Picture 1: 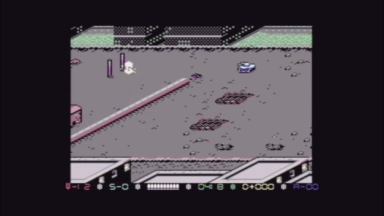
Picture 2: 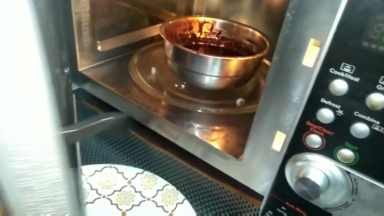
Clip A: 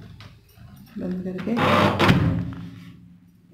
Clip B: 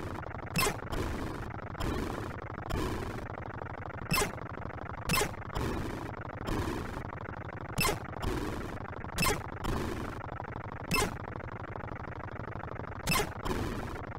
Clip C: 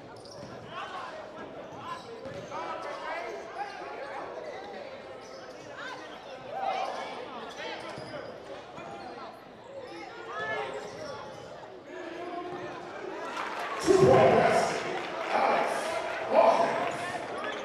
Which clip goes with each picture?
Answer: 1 B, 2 A